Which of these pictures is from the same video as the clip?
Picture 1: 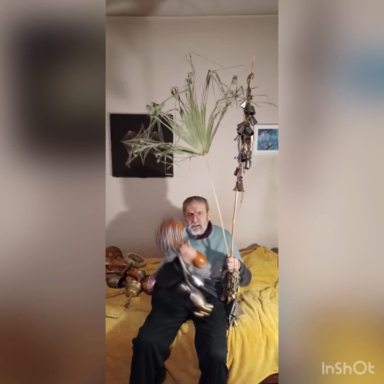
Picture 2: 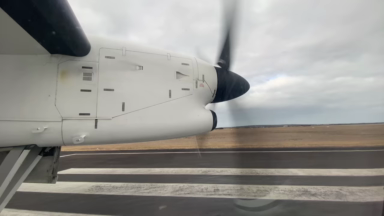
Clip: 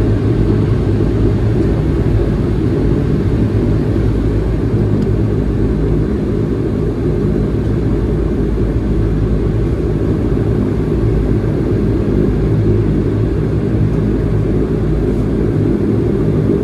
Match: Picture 2